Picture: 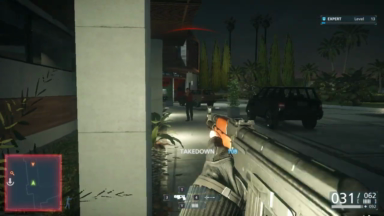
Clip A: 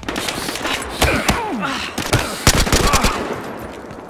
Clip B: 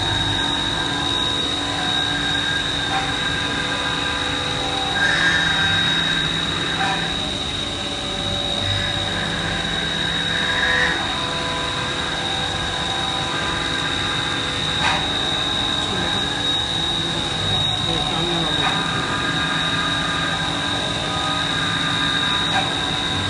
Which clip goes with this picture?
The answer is A